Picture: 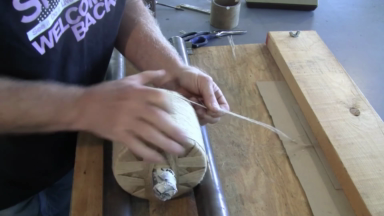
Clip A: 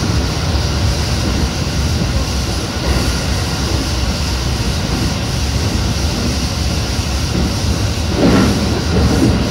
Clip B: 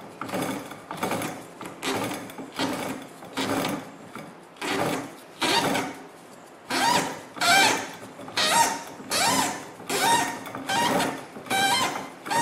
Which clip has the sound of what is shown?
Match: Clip B